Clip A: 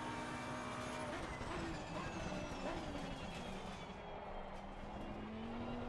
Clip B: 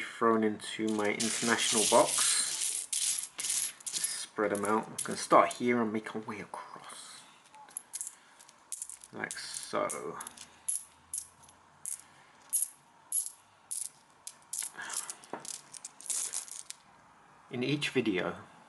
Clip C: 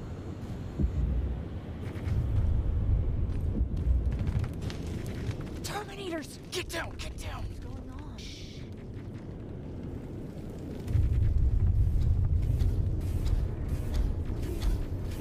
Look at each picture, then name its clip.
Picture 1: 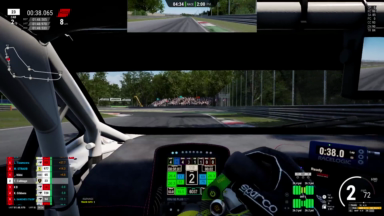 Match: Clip A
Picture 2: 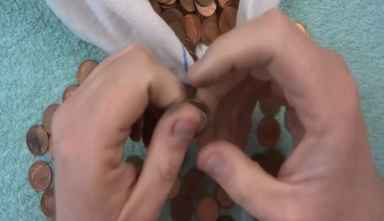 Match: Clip B